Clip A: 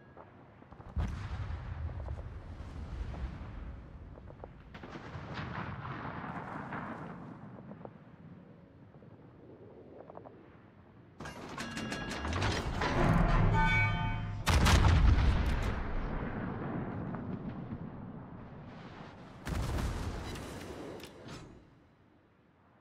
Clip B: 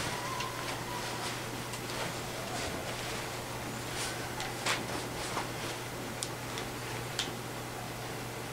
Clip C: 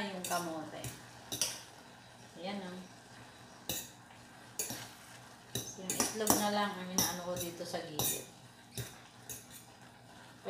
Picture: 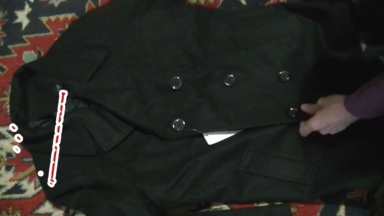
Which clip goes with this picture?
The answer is B